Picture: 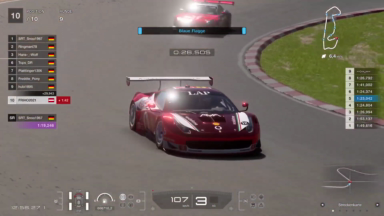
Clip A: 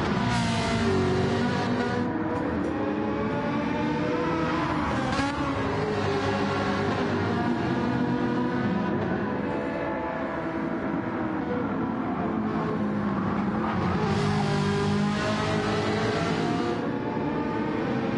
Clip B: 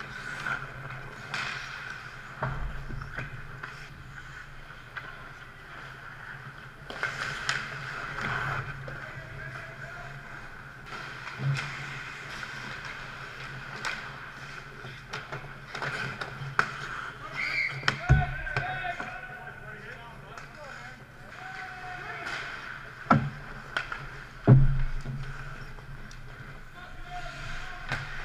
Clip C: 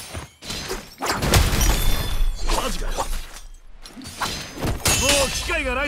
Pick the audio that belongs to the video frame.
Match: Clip A